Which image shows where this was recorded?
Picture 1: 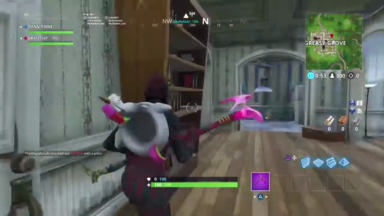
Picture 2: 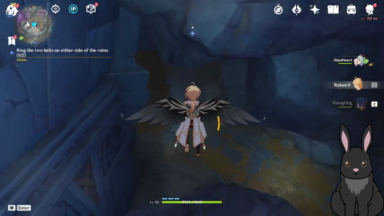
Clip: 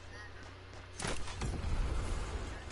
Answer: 1